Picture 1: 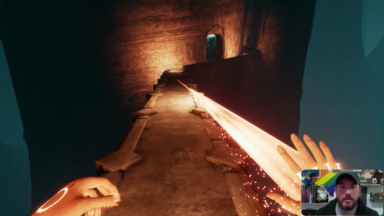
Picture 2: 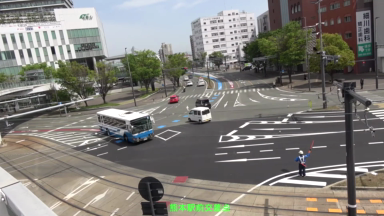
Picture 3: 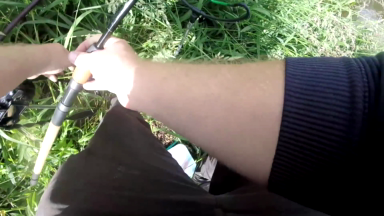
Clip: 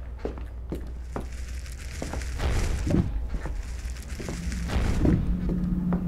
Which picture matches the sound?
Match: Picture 1